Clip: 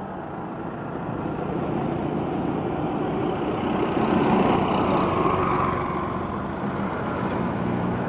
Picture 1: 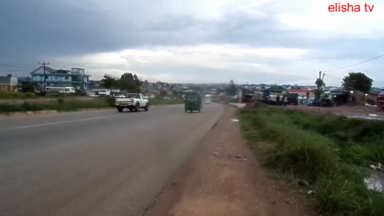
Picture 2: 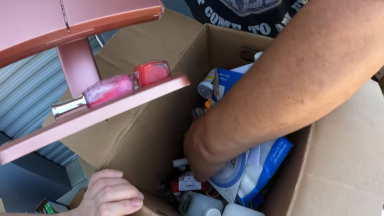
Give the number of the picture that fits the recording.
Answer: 1